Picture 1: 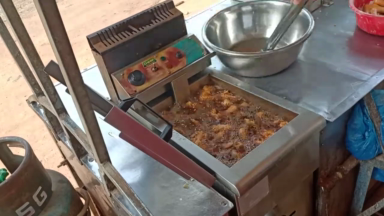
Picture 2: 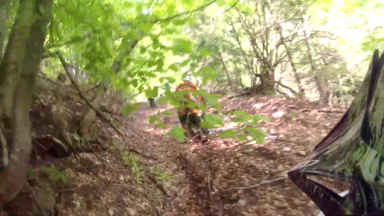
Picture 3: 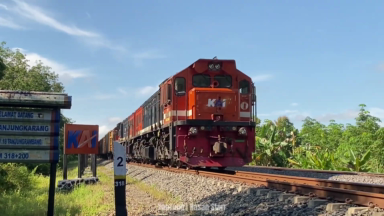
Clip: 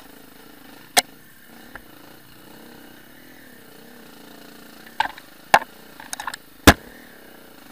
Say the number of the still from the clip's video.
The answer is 2